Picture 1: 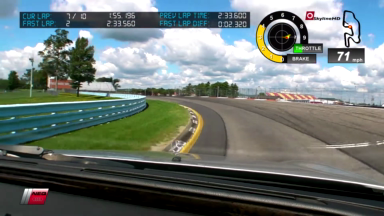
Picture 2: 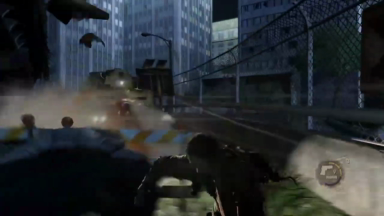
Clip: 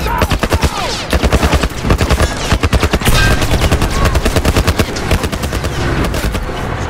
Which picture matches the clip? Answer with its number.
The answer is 2